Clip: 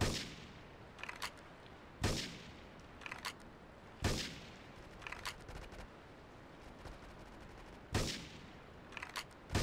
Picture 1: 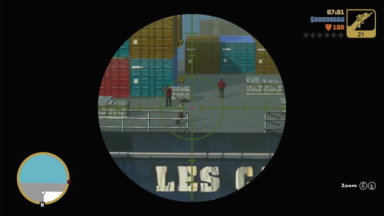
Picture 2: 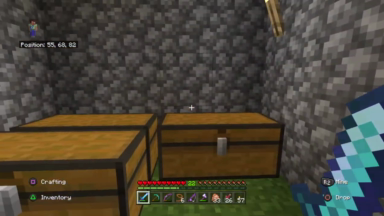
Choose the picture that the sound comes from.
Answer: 1